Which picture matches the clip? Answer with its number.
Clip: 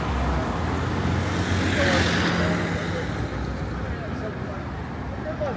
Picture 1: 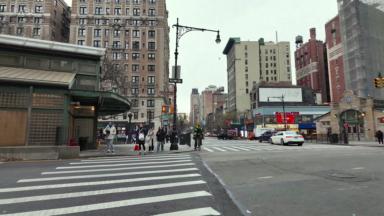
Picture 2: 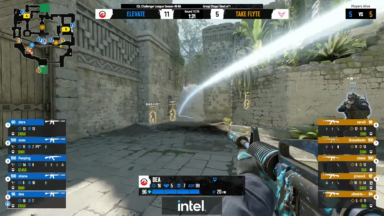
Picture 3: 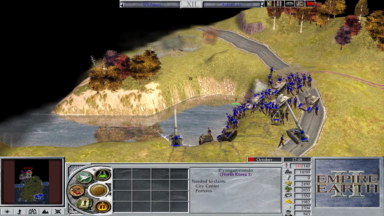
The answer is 1